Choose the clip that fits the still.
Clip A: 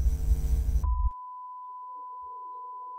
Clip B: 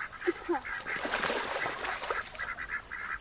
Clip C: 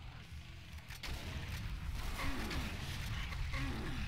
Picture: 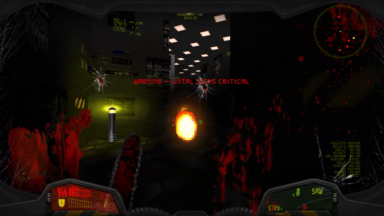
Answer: C